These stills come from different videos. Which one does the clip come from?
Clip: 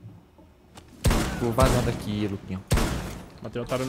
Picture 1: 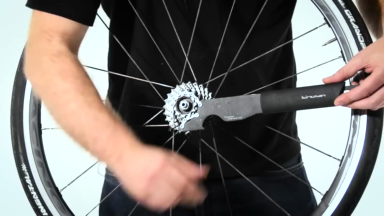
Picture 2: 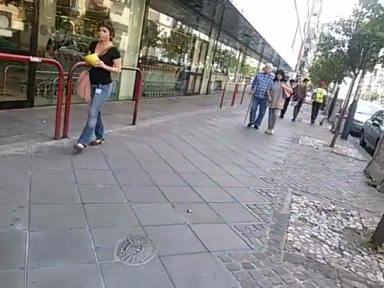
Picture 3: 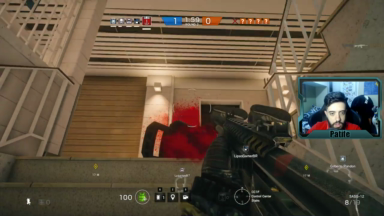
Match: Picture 3